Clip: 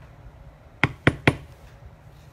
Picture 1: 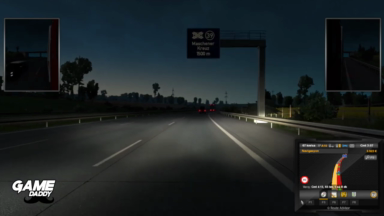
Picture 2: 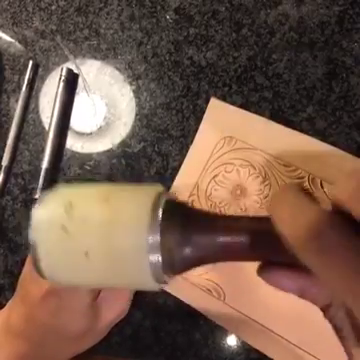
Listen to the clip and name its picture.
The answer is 2